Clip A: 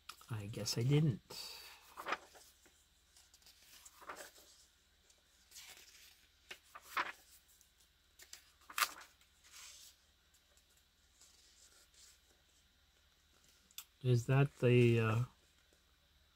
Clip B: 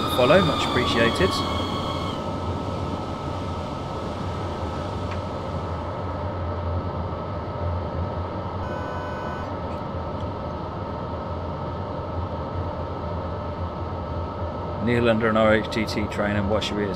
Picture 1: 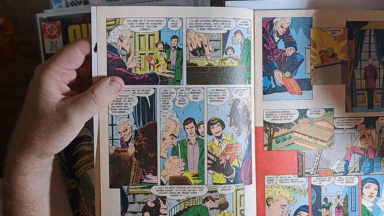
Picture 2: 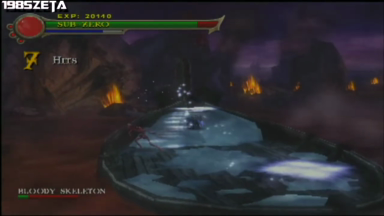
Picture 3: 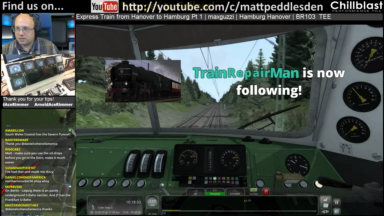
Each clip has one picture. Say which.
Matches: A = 1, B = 3